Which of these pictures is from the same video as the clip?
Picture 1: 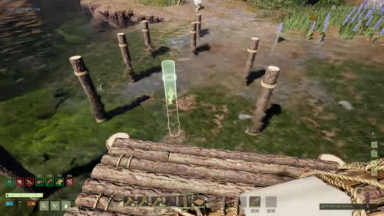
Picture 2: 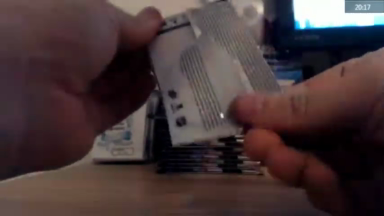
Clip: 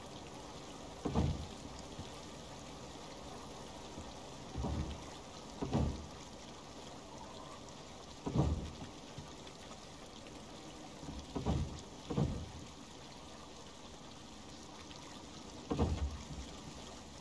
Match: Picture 1